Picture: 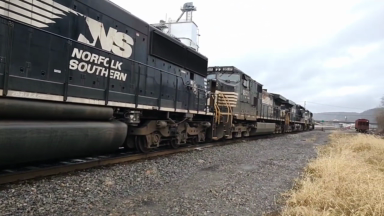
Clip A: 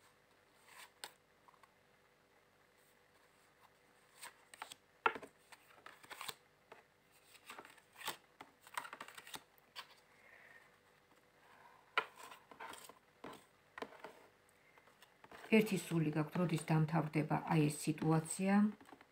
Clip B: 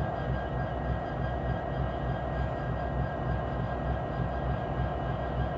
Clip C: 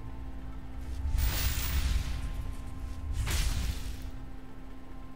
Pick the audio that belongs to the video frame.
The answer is B